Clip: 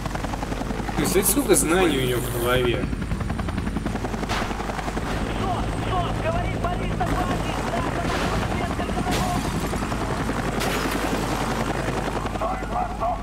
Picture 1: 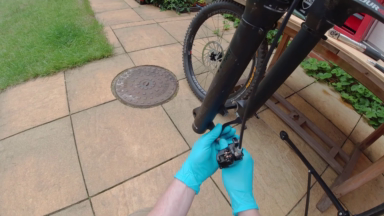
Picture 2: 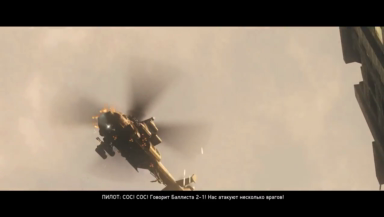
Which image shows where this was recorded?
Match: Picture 2